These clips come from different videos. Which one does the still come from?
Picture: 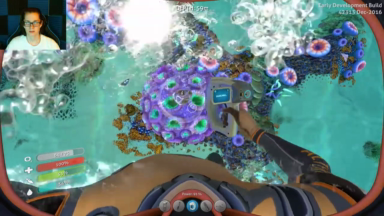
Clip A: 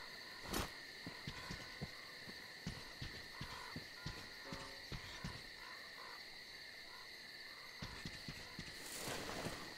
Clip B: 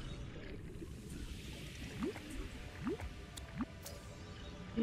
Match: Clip B